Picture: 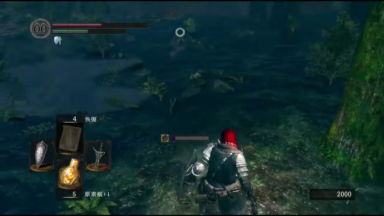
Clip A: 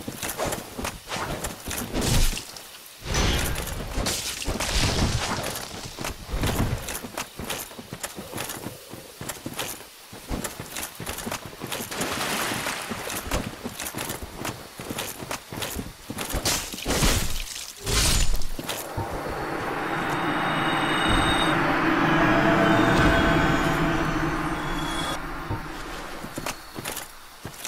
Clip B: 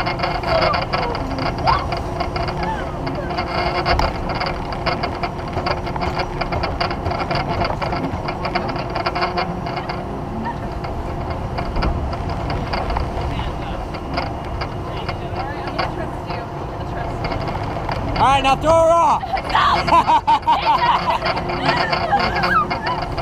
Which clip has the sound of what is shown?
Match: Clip A